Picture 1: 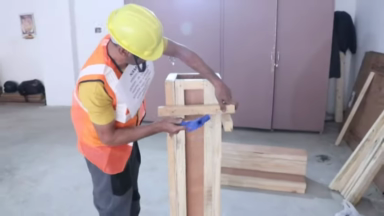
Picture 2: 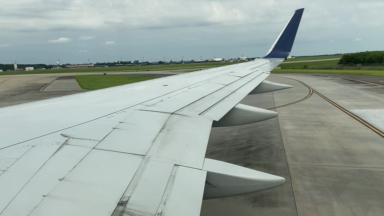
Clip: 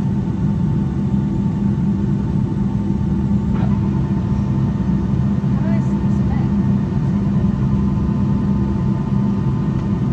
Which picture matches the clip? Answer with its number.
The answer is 2